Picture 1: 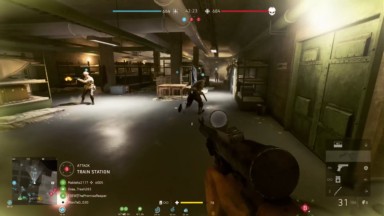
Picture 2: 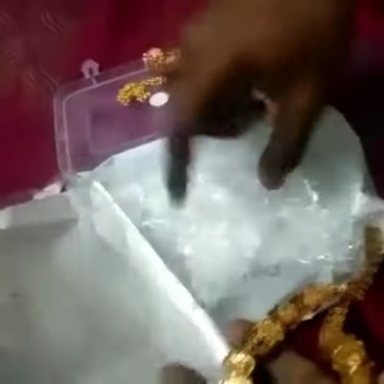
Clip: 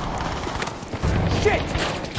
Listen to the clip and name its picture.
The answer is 1